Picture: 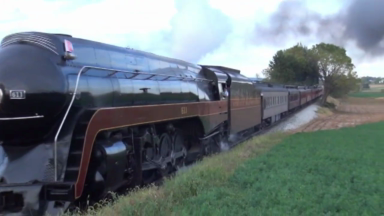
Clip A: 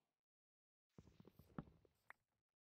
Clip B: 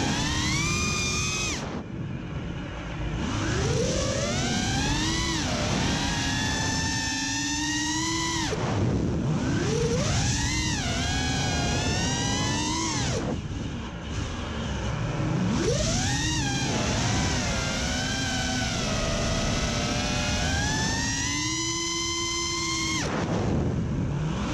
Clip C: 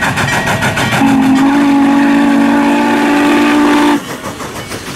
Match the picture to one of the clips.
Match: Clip C